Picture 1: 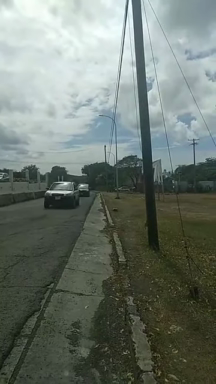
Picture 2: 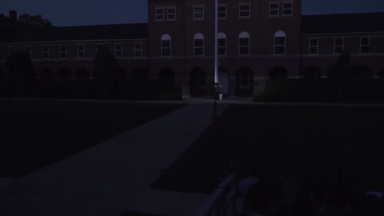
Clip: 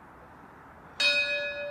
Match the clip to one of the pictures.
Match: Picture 2